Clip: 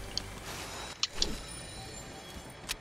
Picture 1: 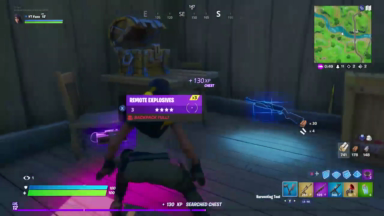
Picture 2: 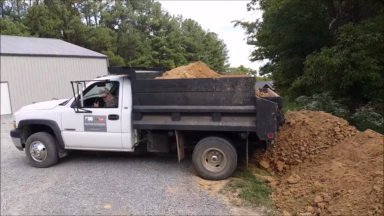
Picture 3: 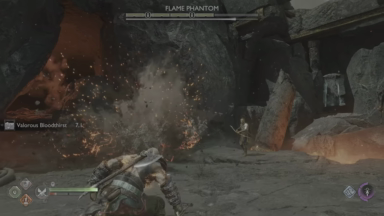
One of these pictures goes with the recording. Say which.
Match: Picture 1